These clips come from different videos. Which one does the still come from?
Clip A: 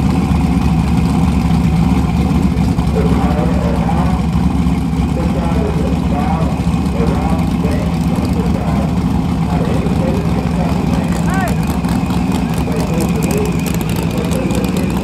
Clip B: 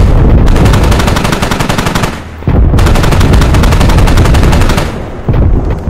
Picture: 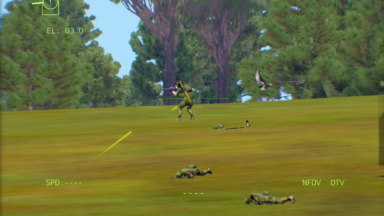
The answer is B